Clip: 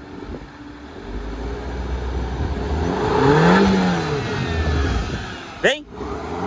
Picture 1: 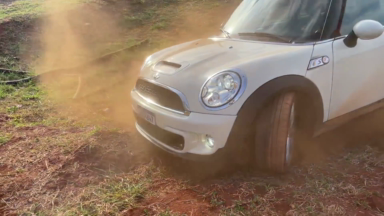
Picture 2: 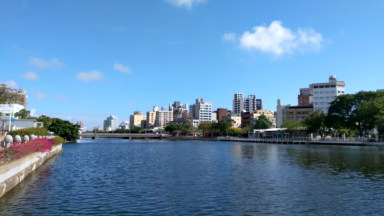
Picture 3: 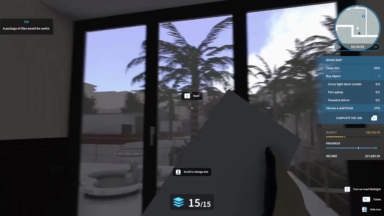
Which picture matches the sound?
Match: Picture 1